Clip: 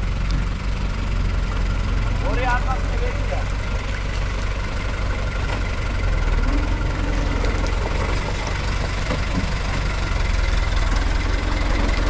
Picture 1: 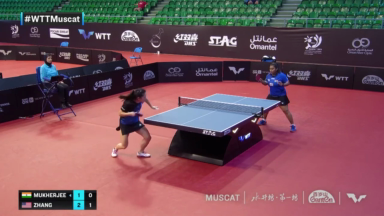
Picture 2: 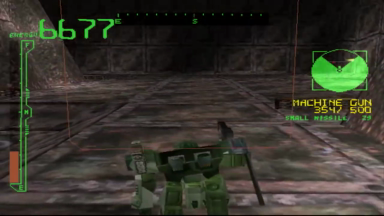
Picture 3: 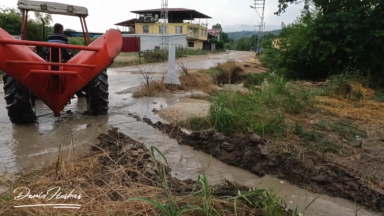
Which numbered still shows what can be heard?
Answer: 3